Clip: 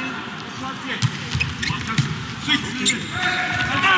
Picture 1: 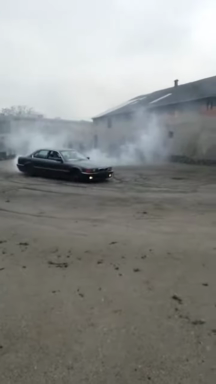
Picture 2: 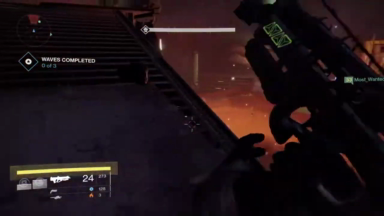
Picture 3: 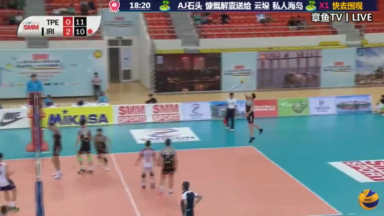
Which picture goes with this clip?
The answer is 3